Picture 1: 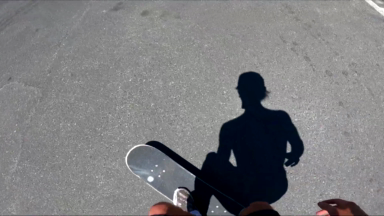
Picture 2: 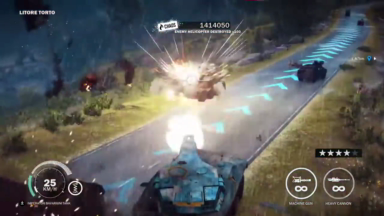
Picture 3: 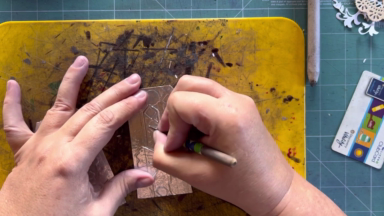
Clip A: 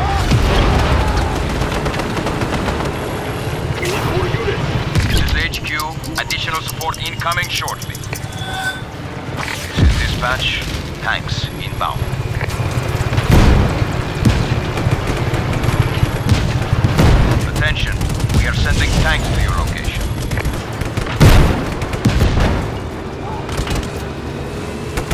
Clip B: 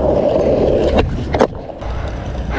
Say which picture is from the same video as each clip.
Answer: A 2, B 1